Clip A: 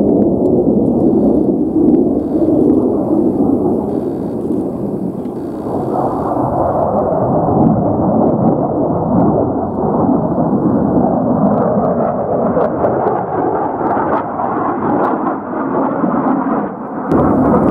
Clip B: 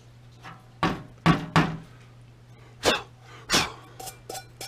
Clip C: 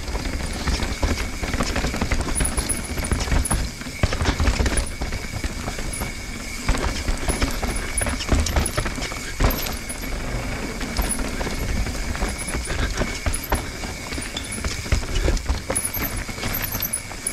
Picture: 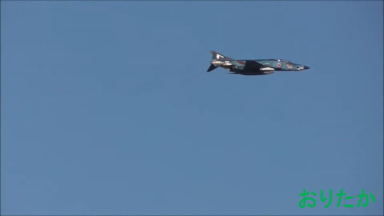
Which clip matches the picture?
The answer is A